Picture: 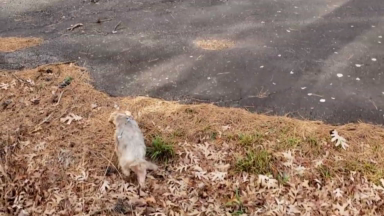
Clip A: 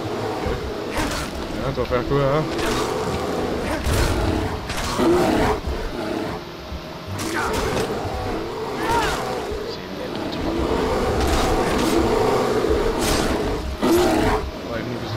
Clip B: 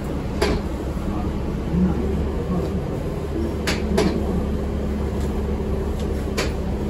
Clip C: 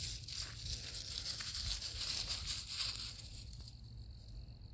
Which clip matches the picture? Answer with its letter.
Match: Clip C